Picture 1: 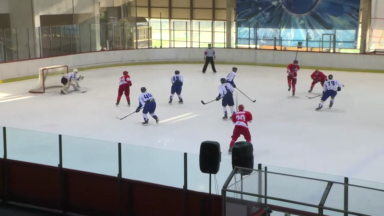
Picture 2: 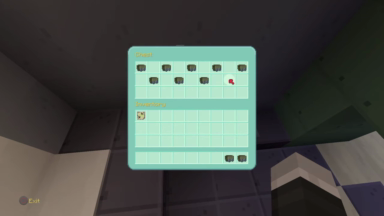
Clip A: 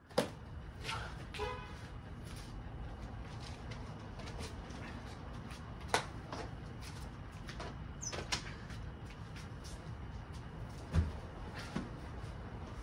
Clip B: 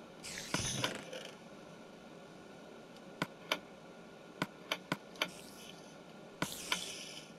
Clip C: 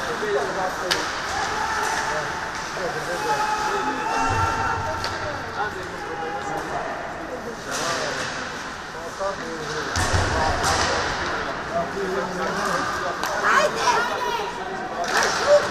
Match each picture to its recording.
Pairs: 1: C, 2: B